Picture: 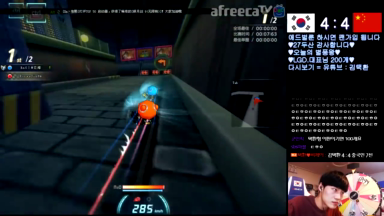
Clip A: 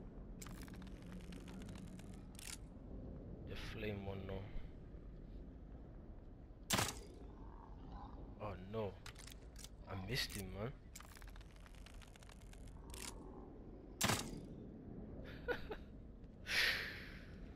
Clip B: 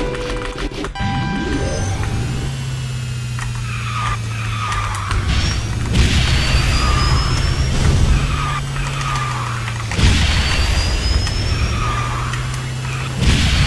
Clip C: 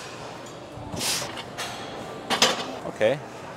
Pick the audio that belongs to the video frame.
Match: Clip B